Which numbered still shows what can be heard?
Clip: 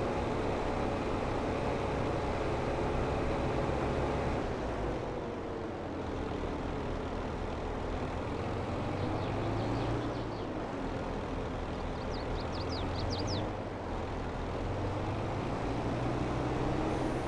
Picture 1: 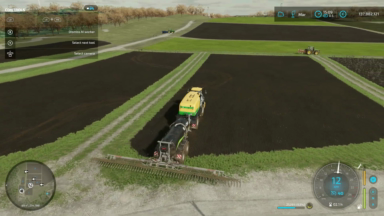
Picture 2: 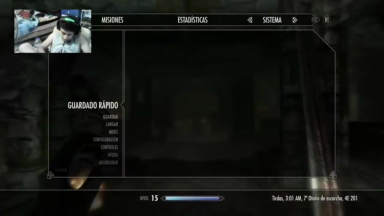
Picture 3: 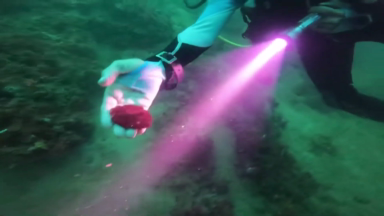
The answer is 1